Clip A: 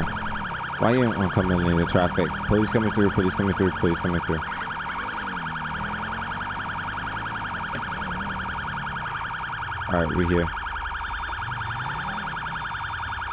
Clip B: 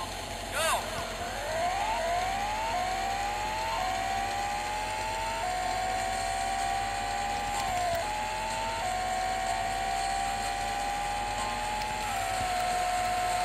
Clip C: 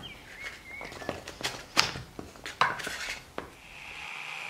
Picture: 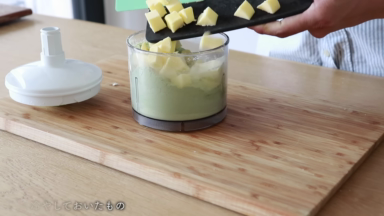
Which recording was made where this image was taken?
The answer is C